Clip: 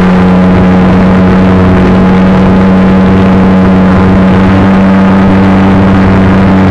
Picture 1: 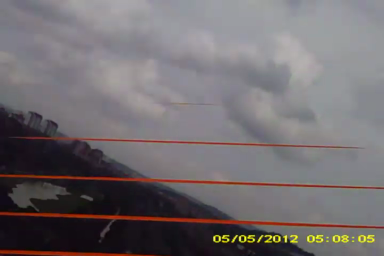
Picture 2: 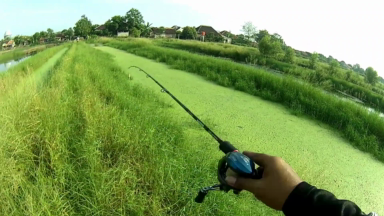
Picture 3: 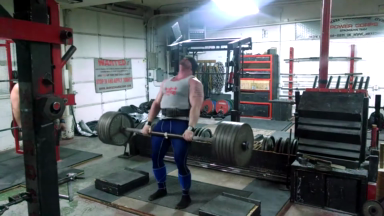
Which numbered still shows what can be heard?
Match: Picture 1